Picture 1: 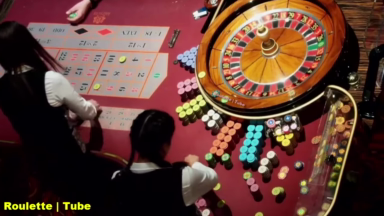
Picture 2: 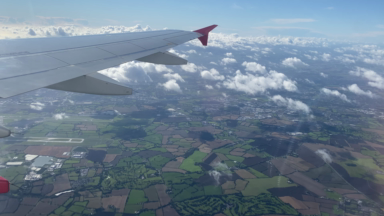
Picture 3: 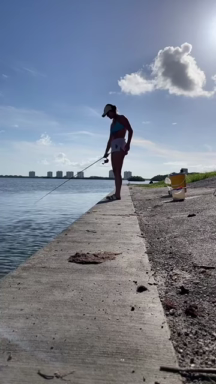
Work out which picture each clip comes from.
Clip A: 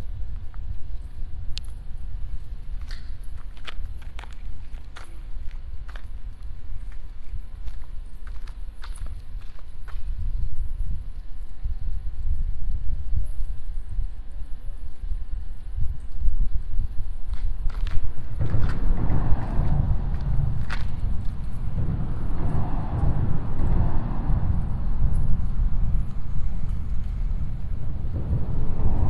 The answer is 3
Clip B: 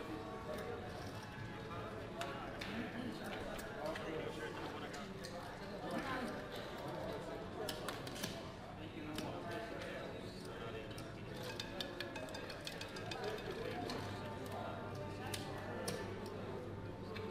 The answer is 1